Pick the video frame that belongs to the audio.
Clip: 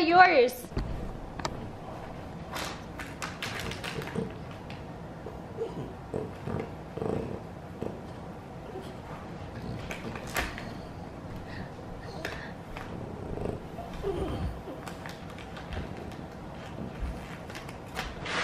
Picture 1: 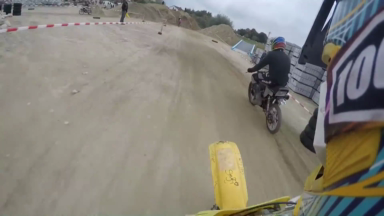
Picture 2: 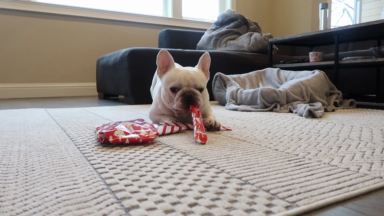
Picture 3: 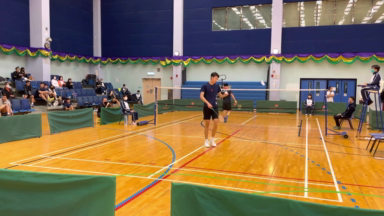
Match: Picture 2